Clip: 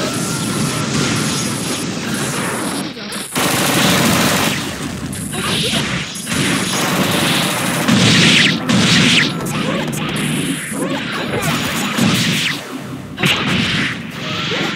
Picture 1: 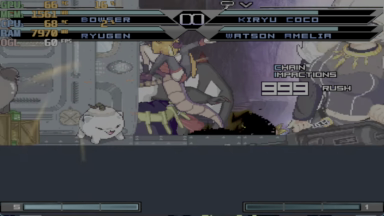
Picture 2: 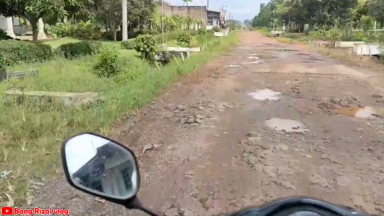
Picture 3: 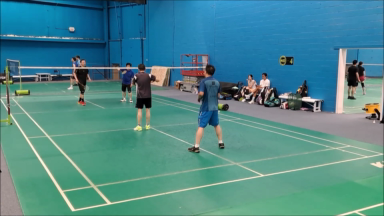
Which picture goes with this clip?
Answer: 1